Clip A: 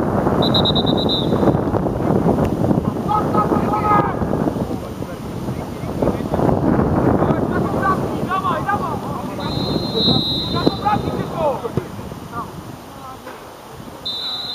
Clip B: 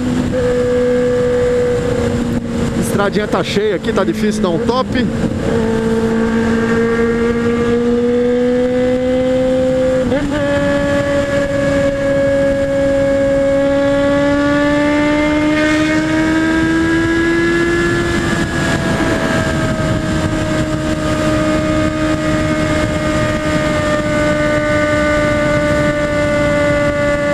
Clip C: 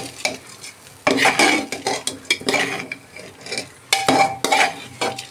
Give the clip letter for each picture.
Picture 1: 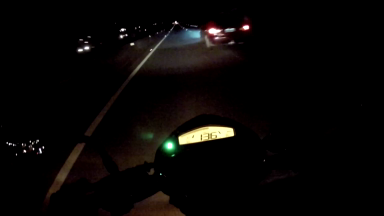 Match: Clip B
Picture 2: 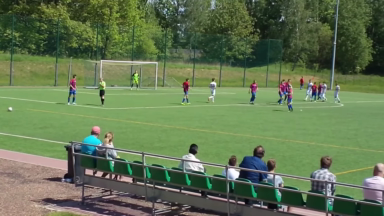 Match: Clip A